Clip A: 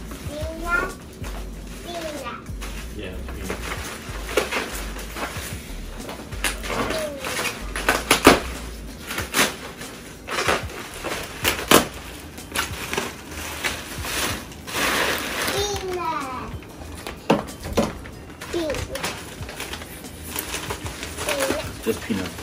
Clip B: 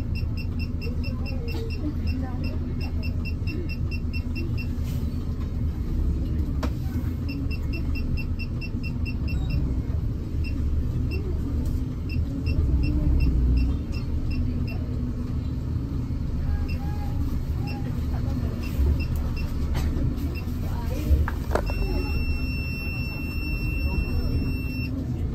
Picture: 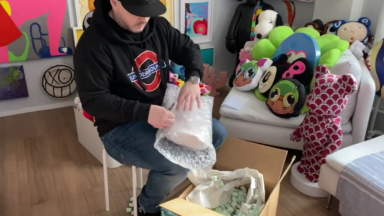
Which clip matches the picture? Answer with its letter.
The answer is A